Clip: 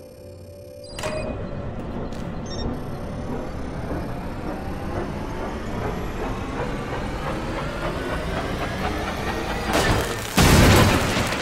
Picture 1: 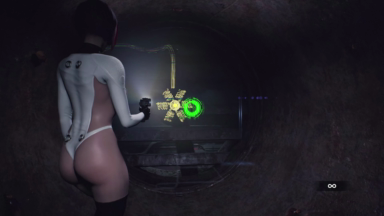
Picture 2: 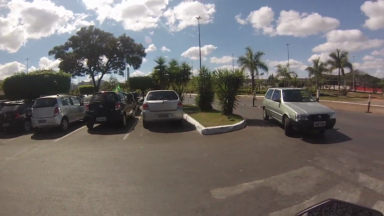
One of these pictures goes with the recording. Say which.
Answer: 1